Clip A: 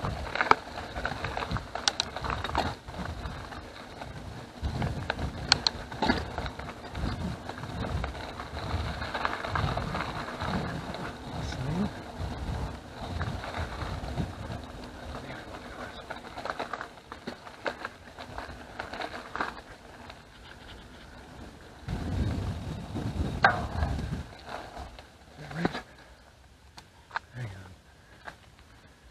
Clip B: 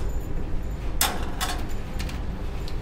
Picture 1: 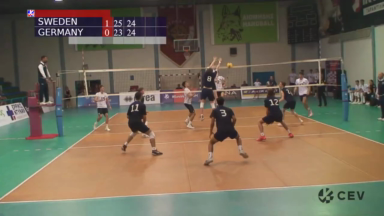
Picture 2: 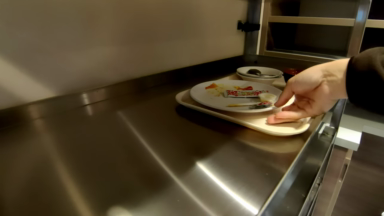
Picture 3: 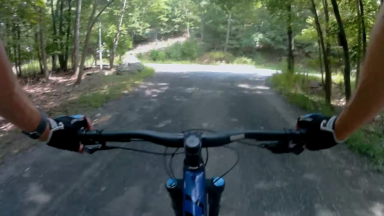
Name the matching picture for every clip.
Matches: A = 3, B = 2